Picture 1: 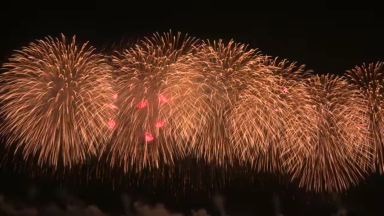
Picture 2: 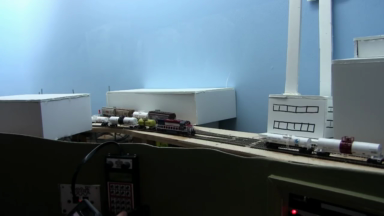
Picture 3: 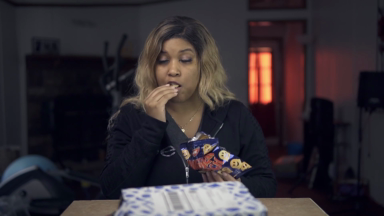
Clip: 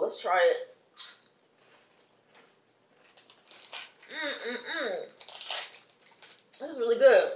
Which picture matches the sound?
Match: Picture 3